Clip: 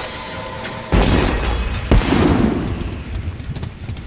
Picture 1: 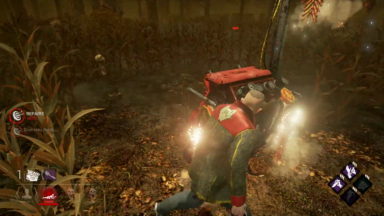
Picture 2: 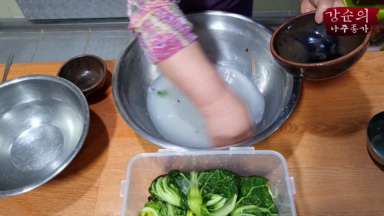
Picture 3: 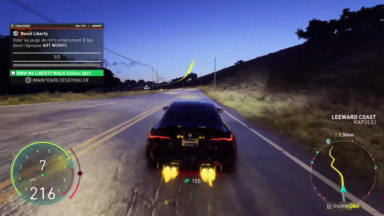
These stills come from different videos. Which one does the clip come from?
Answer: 1